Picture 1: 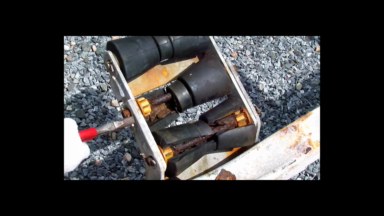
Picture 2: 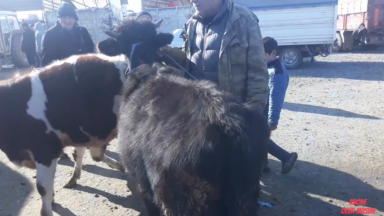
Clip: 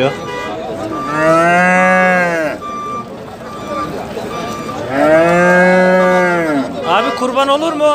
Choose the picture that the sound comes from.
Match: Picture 2